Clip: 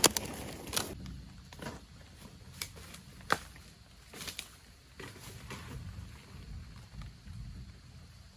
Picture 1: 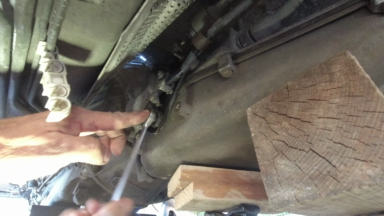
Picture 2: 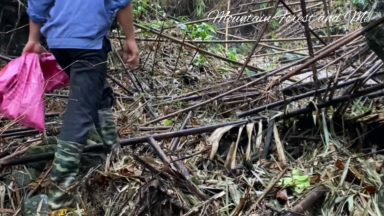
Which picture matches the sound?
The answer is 2